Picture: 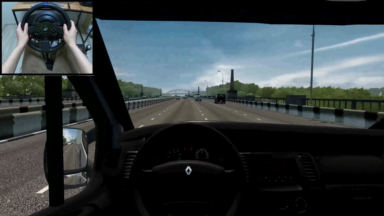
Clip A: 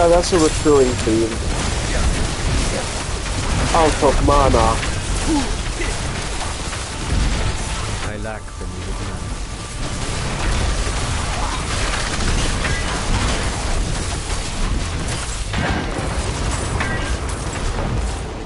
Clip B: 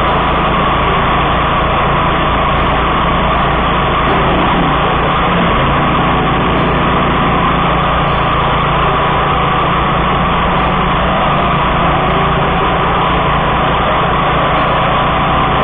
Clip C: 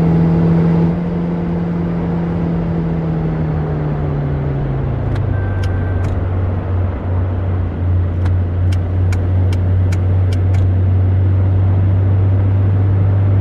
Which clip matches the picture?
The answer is C